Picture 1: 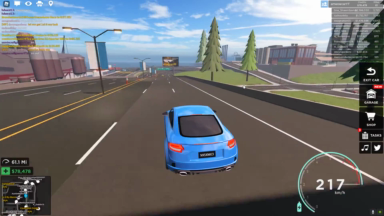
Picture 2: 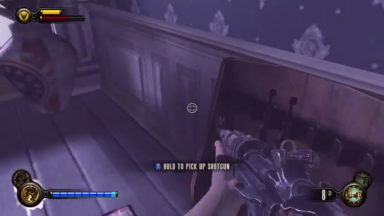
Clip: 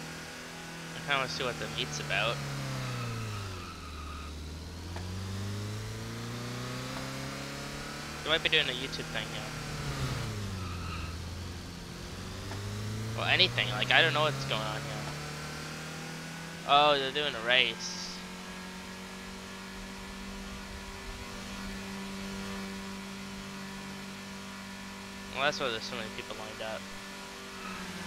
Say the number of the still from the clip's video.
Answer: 1